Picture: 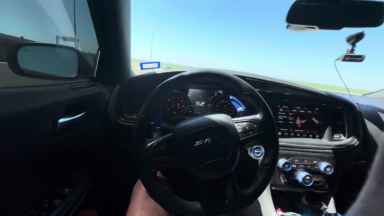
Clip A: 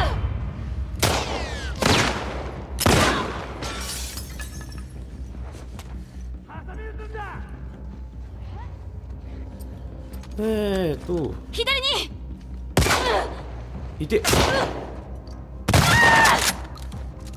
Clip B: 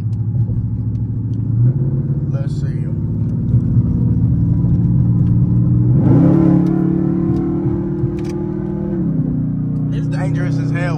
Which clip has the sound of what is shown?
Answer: B